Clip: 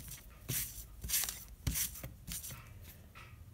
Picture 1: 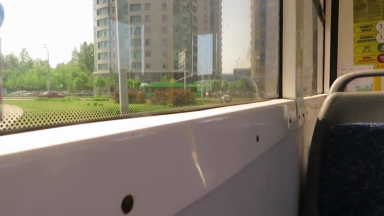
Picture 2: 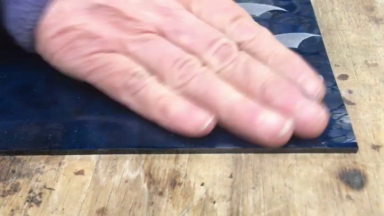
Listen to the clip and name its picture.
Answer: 2